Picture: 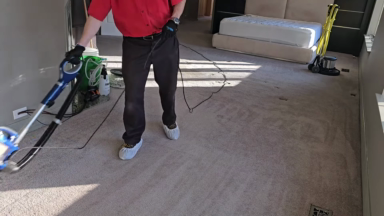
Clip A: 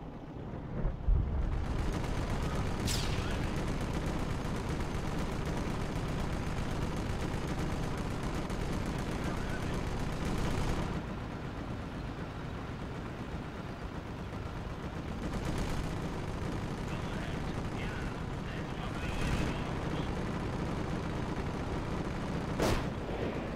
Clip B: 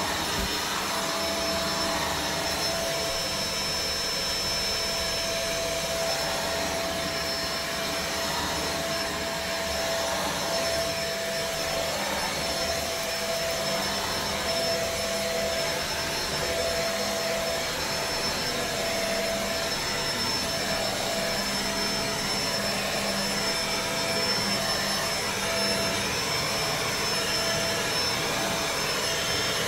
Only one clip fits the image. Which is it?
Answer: B